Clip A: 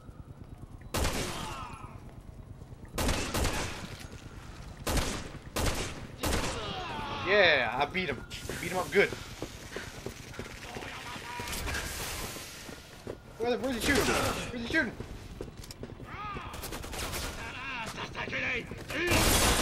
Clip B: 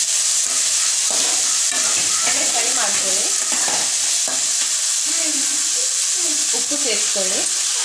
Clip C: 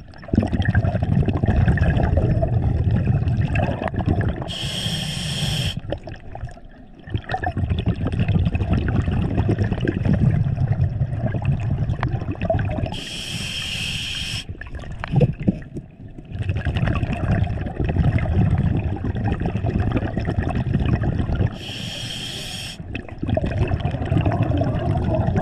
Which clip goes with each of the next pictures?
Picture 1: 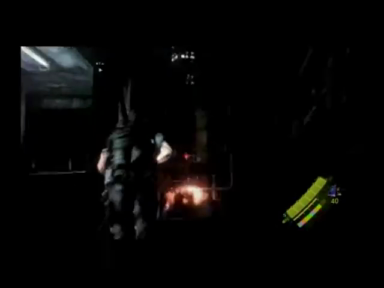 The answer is A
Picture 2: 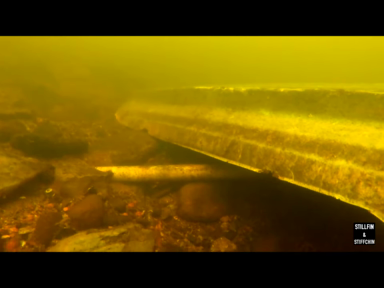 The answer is C